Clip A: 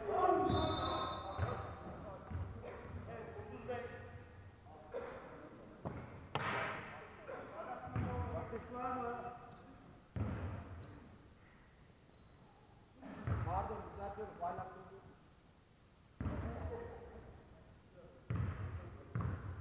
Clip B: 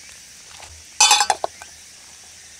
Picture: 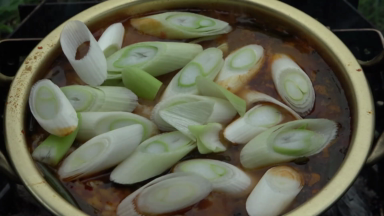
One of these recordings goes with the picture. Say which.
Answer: B